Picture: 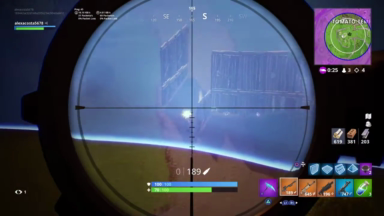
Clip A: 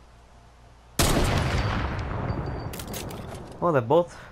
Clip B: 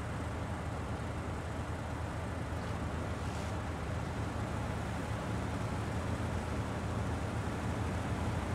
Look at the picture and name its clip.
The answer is A